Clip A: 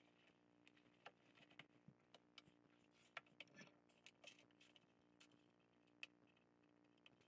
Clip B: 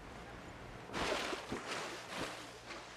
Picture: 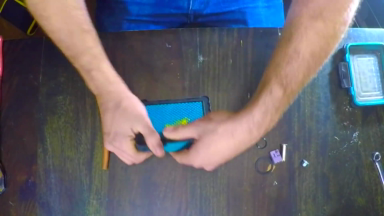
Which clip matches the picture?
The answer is A